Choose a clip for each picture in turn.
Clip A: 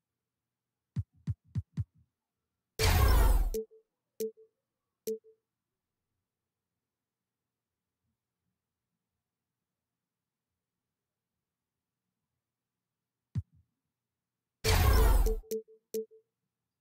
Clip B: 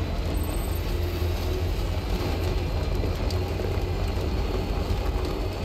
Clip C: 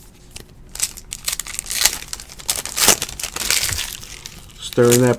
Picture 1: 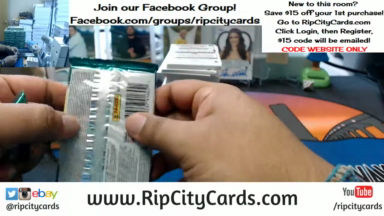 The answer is C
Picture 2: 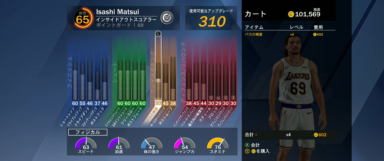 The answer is A